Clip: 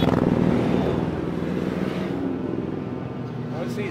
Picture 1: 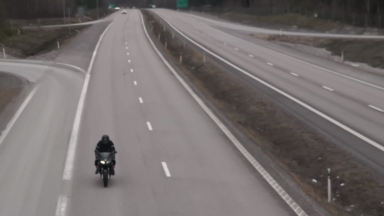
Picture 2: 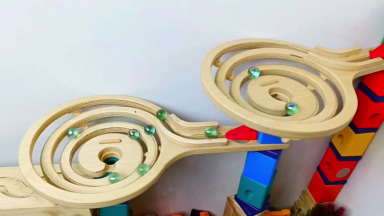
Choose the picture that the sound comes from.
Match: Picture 1